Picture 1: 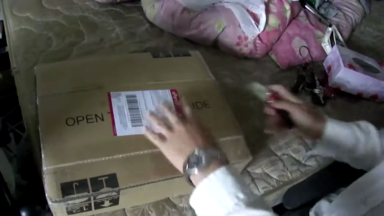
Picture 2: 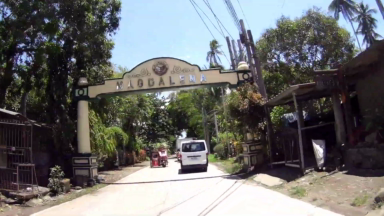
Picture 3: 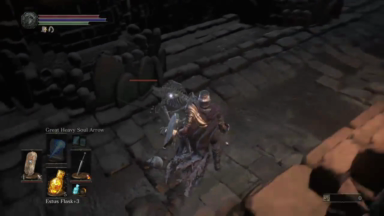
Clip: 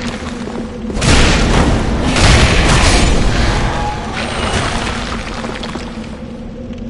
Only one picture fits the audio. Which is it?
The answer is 3